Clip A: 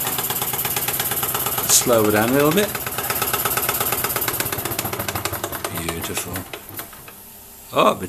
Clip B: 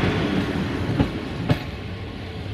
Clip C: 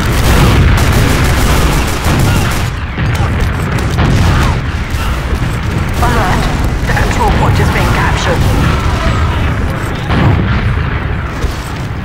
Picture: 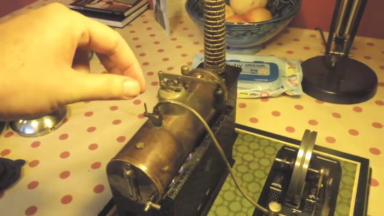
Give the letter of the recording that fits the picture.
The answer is A